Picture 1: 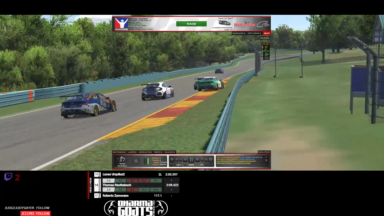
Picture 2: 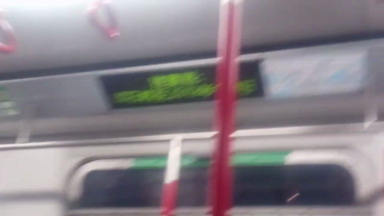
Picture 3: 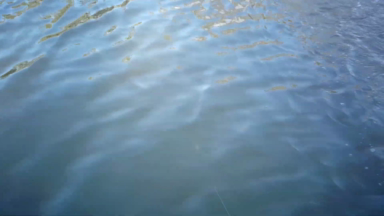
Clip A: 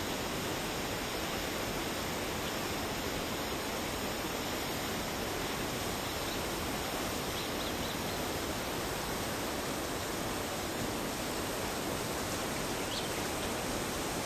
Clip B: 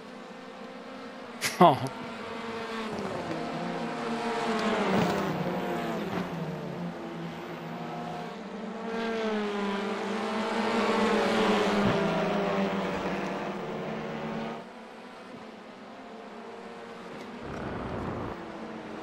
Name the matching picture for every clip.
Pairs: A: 3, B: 1